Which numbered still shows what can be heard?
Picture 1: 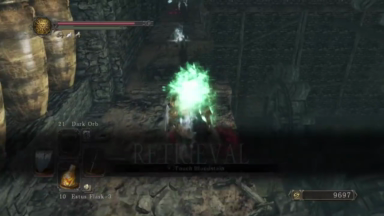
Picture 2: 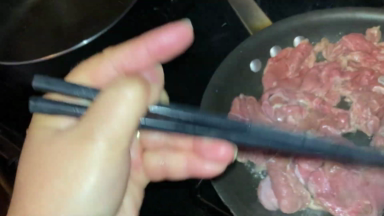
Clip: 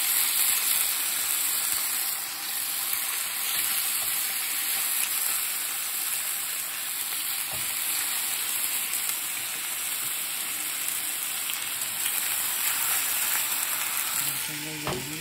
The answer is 2